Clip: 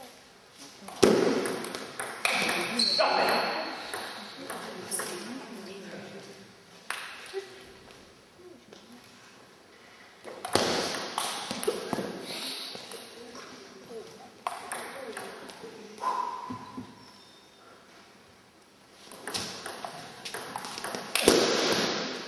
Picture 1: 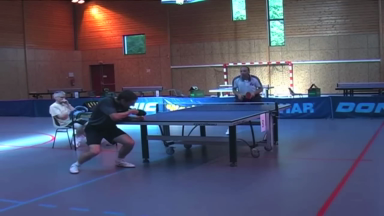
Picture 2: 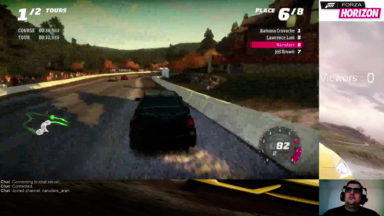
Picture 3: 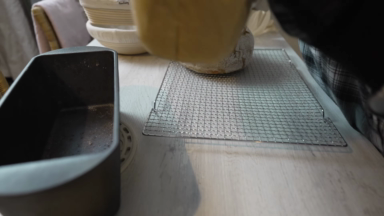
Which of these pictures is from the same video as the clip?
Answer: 1